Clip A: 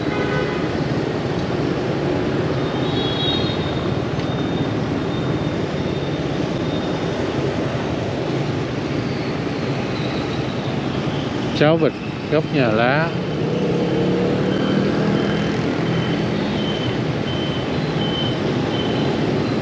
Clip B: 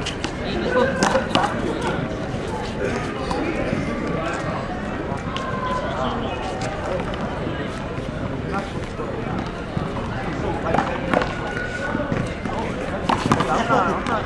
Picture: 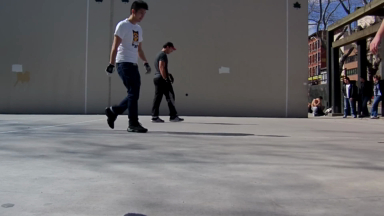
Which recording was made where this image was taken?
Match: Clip B